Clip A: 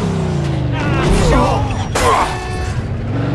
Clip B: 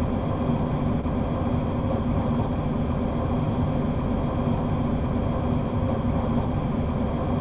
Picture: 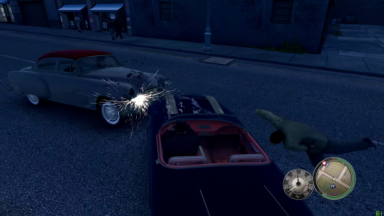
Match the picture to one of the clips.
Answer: A